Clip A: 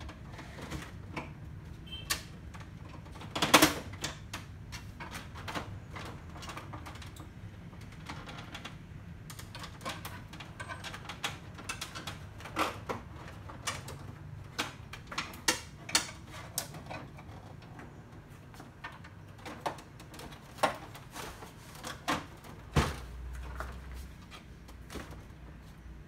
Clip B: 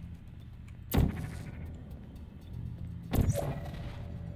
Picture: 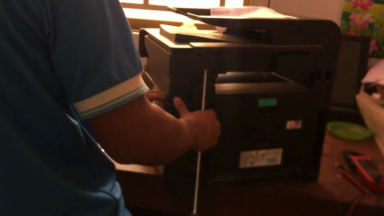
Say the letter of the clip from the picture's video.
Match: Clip A